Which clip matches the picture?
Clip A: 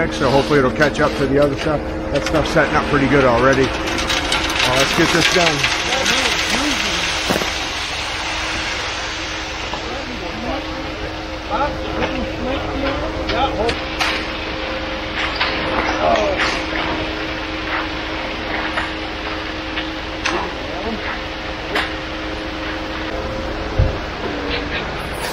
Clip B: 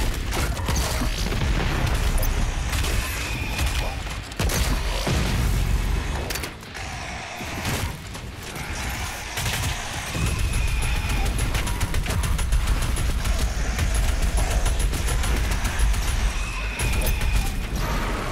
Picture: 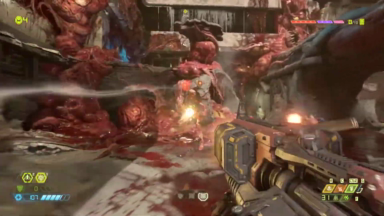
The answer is B